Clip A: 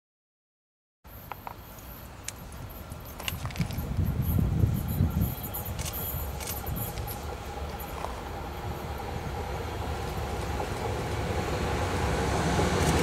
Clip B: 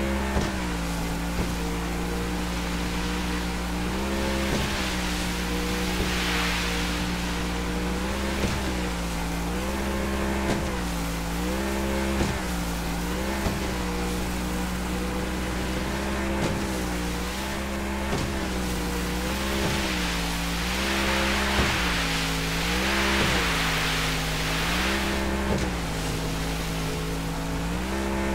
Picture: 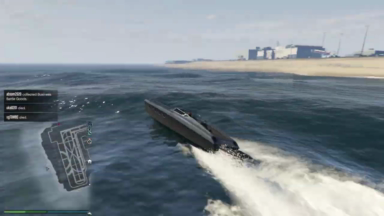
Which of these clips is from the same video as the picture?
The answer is B